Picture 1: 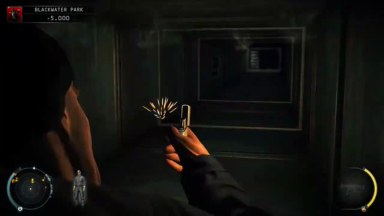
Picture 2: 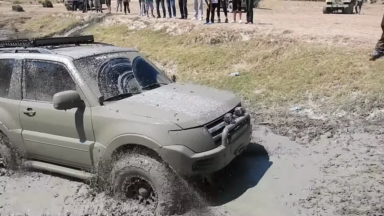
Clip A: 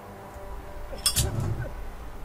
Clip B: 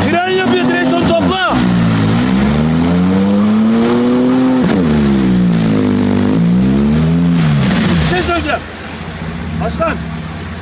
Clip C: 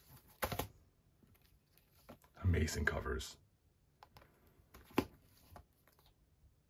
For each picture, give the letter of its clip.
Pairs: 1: A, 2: B